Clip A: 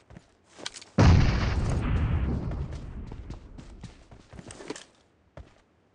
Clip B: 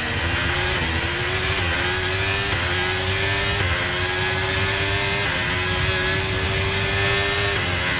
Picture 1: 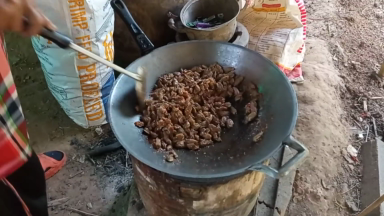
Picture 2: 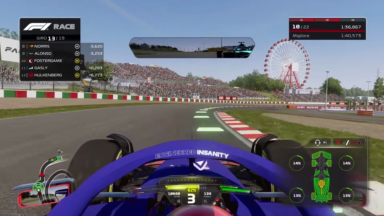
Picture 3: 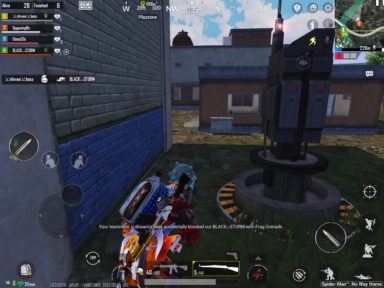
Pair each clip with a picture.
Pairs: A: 3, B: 2